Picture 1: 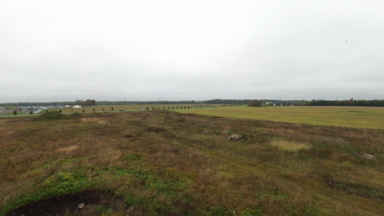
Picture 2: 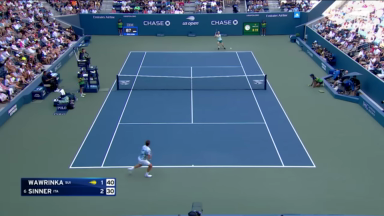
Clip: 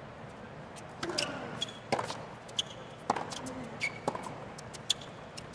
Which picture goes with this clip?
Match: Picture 2